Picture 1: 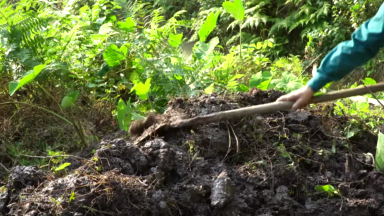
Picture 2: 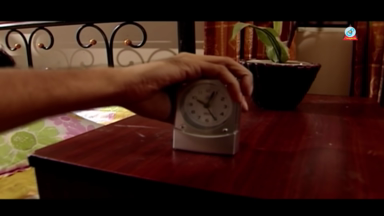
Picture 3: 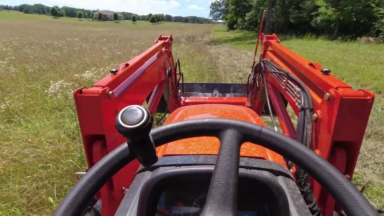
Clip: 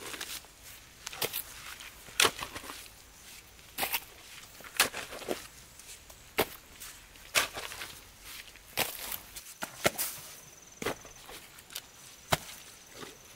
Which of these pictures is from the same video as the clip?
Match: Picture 1